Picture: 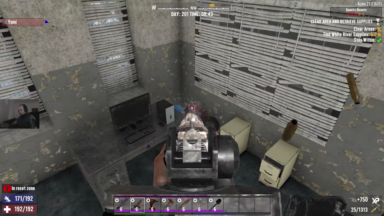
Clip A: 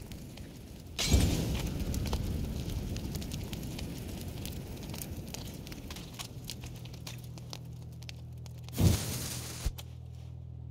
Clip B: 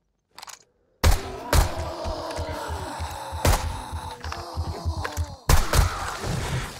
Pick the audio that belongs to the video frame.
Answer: B